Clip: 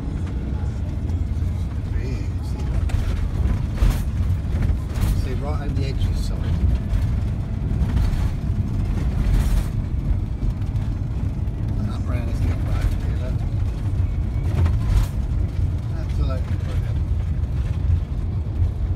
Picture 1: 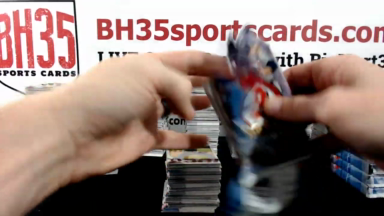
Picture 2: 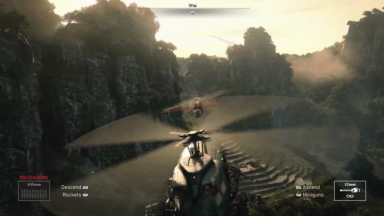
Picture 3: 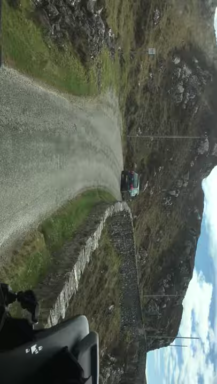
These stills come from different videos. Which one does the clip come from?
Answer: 3